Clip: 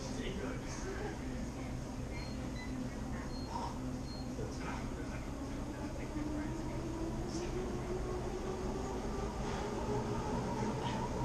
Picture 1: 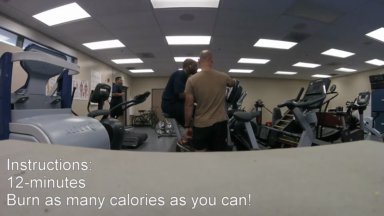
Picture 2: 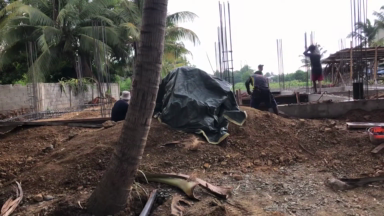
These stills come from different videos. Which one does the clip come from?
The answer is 1